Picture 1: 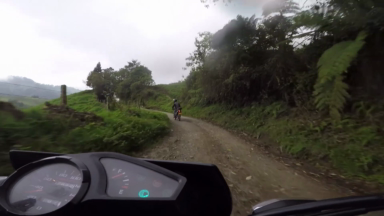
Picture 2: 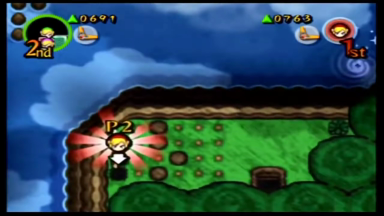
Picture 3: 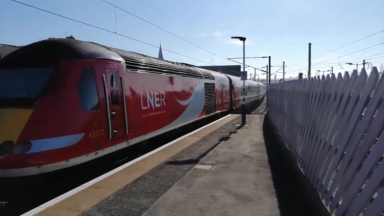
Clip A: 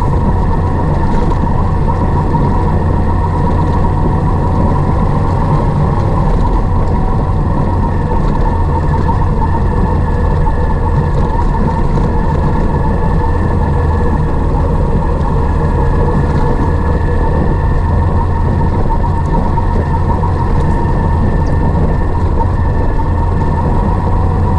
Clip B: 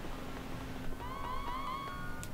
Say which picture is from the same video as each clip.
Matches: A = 1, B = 2